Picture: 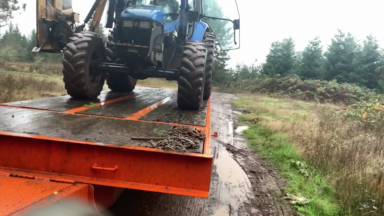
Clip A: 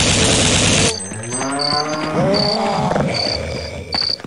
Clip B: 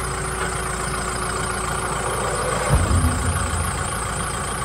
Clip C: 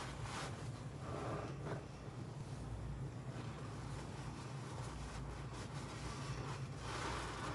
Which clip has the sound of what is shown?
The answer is B